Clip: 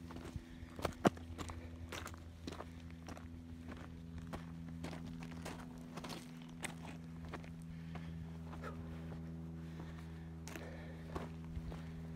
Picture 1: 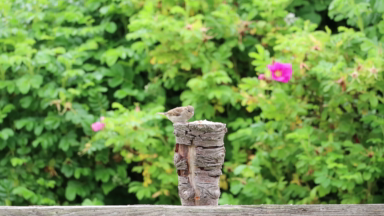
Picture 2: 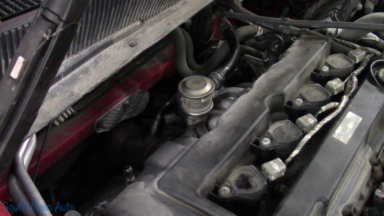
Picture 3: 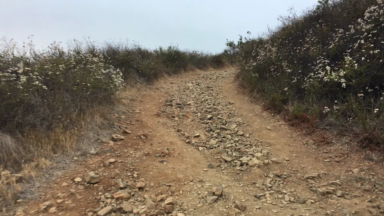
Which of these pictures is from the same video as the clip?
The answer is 3